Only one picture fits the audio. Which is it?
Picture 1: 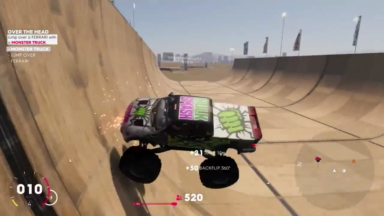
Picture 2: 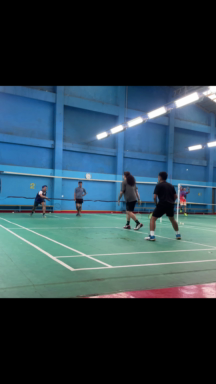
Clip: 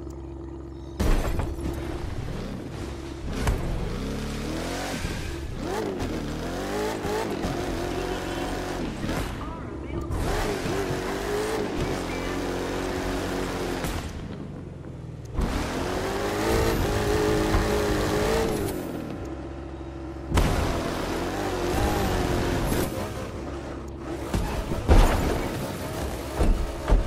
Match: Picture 1